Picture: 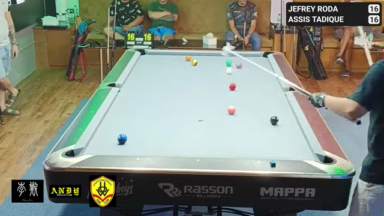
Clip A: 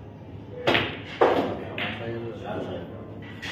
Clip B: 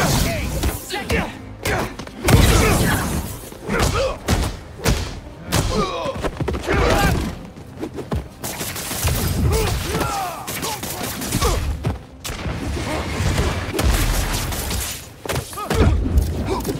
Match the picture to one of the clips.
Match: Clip A